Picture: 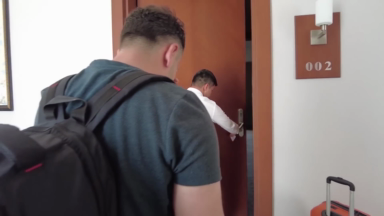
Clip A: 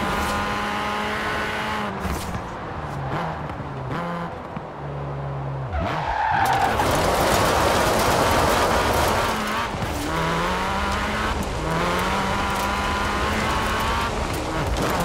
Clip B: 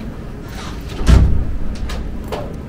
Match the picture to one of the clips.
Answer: B